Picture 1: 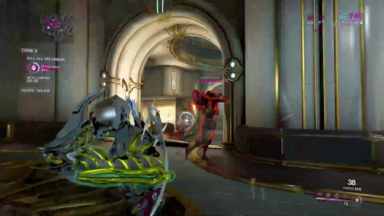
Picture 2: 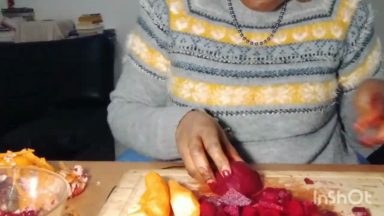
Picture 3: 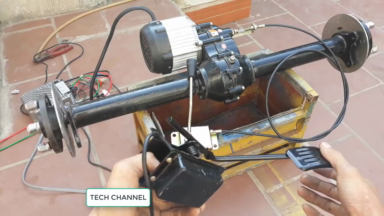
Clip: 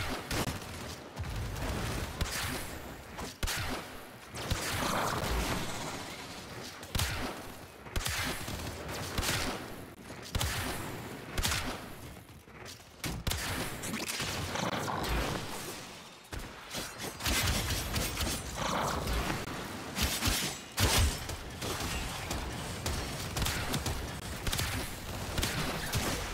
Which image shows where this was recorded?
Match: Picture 1